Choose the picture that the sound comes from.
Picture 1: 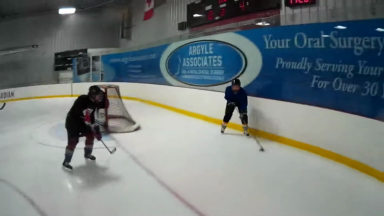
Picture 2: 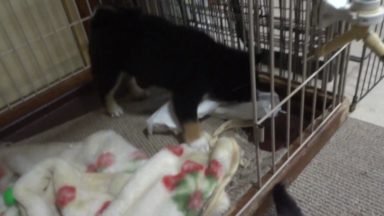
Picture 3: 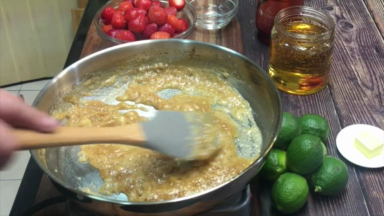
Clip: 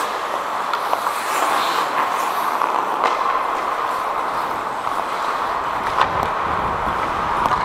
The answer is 1